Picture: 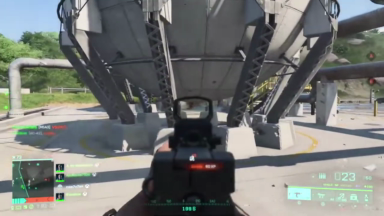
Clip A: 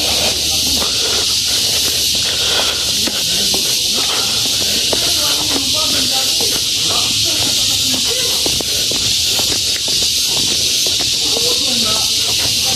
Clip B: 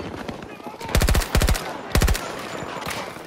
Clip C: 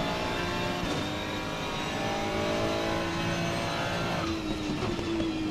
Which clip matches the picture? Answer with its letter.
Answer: B